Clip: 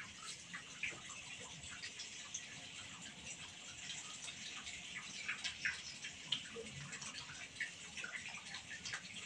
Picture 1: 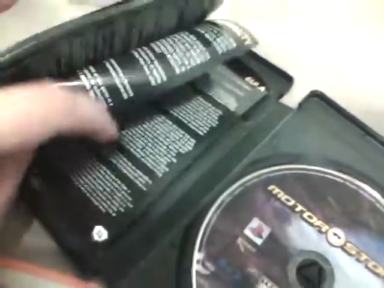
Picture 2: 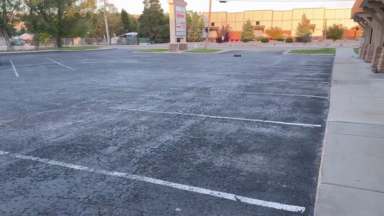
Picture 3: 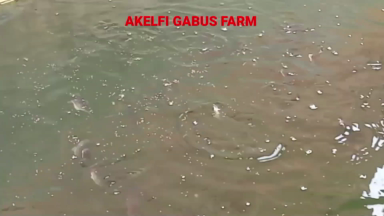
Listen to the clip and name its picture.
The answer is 3